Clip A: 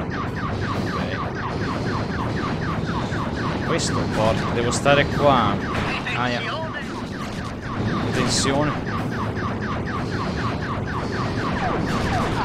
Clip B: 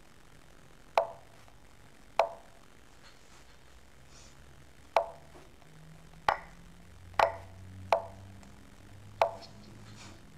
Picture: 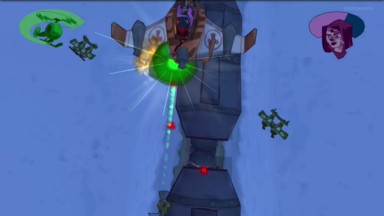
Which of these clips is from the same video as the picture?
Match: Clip A